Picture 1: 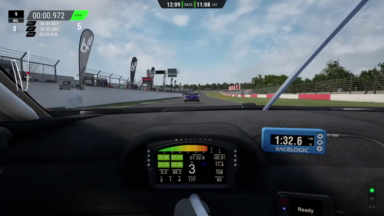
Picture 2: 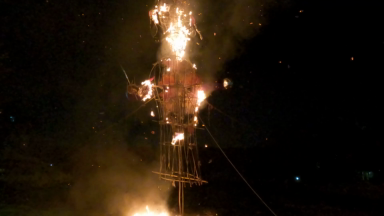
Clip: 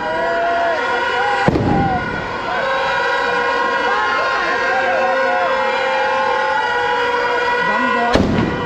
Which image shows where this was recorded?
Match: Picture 2